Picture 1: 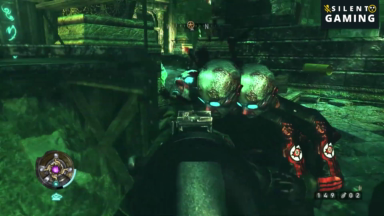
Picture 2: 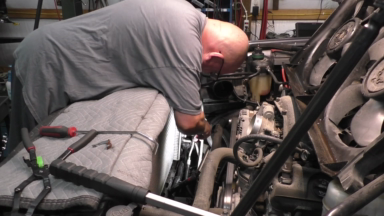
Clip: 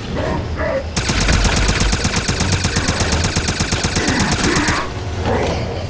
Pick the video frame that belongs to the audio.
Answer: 1